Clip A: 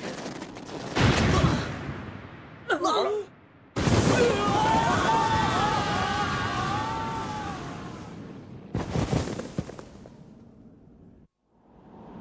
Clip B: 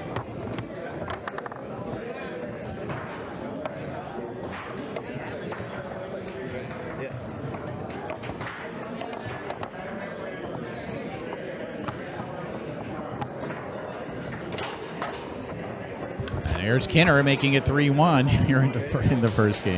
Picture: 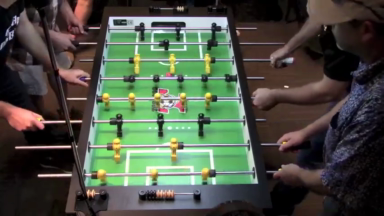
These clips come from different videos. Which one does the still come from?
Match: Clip B